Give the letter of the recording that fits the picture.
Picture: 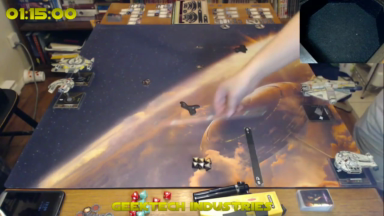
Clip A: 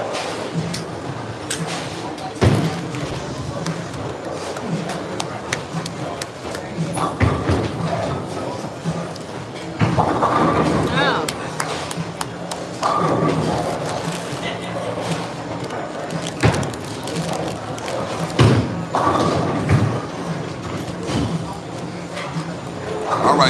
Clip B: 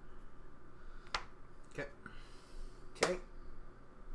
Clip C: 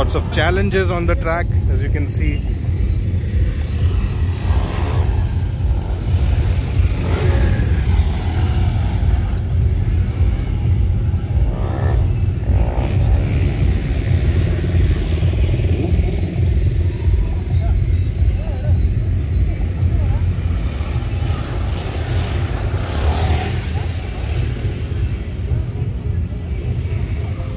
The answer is B